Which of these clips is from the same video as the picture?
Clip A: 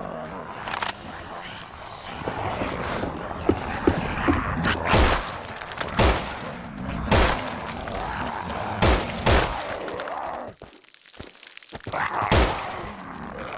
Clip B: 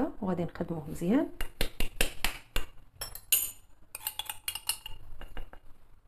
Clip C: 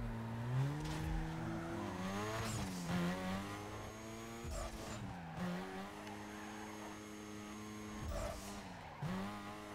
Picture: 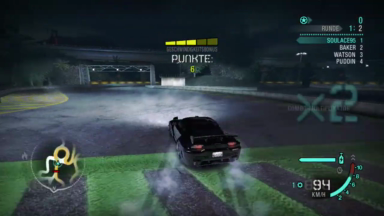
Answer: C